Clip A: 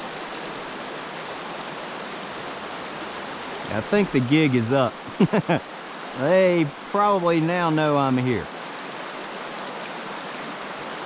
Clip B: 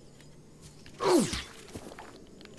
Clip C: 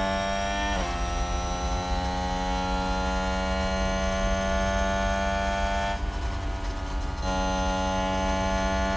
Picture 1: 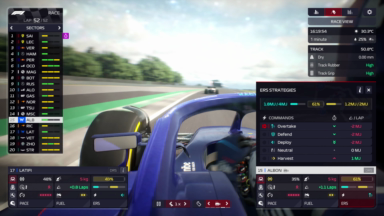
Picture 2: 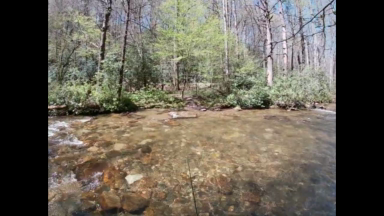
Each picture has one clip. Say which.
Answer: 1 C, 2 A